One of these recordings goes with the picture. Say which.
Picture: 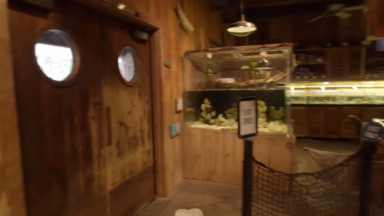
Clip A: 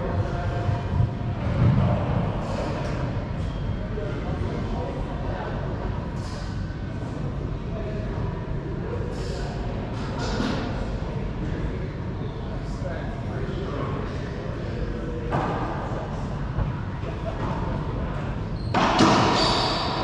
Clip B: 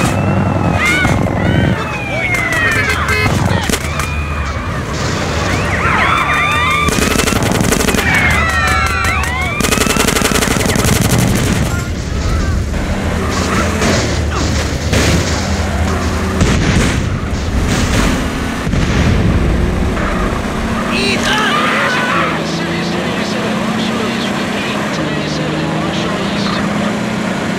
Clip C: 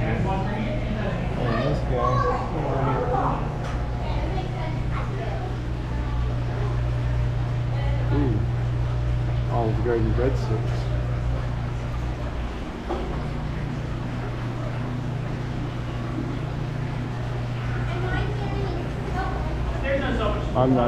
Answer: C